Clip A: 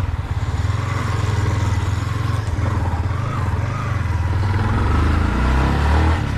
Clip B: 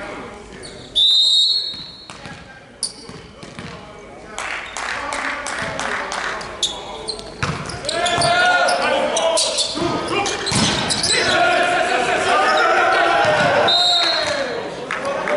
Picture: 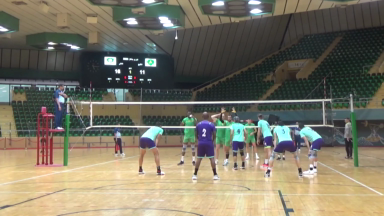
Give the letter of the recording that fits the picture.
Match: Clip B